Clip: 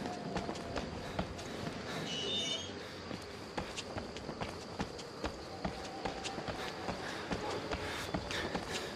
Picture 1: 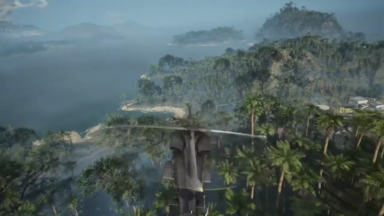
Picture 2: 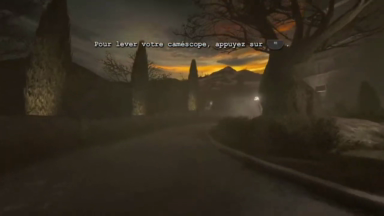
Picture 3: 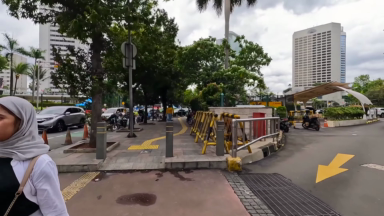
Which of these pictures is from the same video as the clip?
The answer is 2